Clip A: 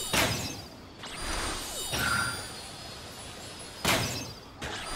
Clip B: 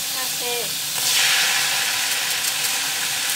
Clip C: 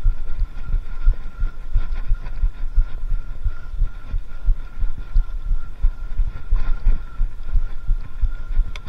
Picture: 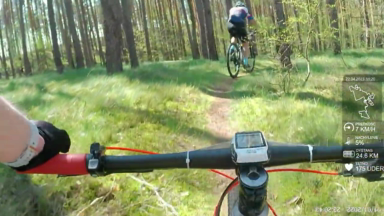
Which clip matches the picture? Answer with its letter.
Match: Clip C